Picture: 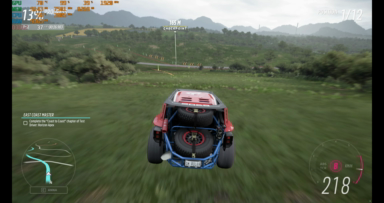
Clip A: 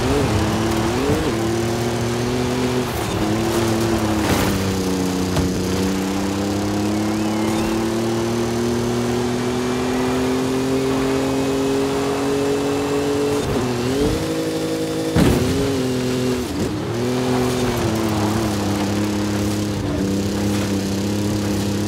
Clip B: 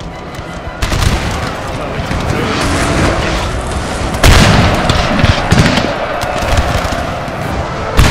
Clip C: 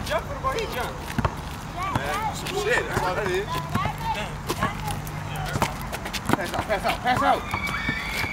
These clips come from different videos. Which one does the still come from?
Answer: A